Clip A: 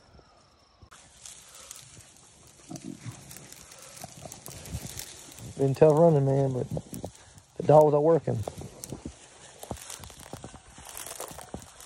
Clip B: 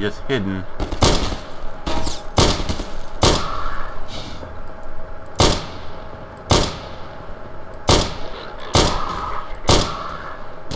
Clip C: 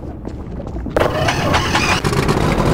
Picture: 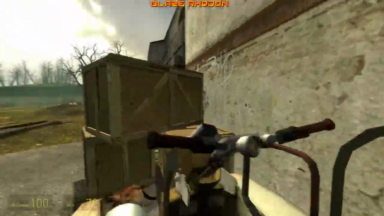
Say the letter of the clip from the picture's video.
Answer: C